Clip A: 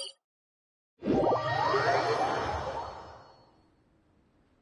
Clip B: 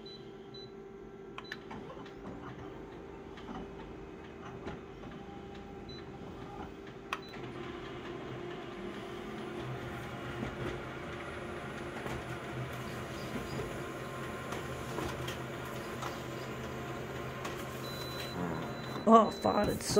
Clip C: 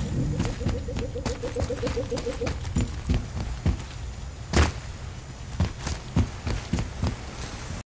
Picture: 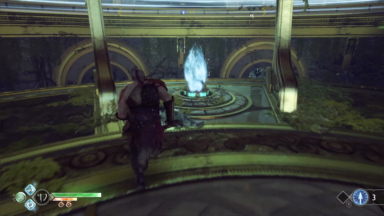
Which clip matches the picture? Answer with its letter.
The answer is C